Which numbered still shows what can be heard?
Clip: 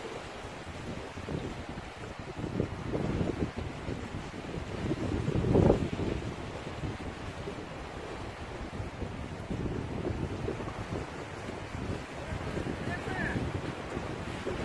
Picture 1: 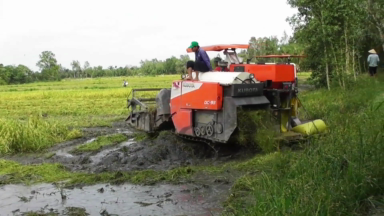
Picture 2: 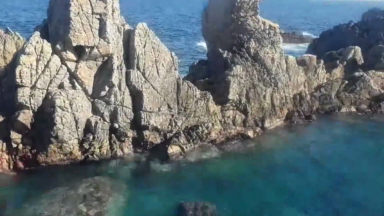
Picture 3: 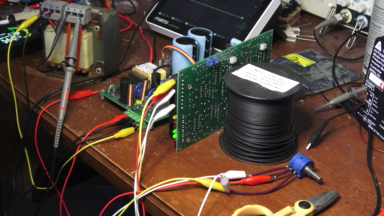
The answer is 2